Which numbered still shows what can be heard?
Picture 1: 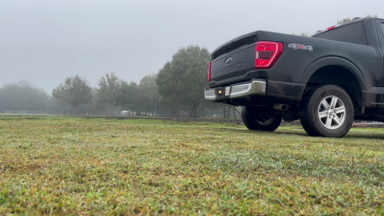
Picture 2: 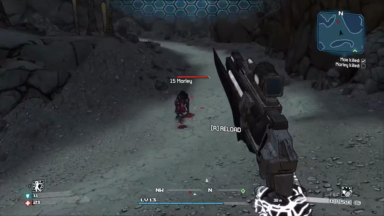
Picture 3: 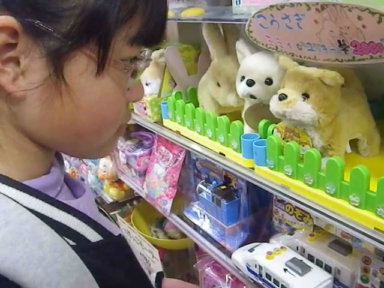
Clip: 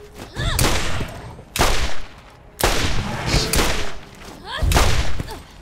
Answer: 2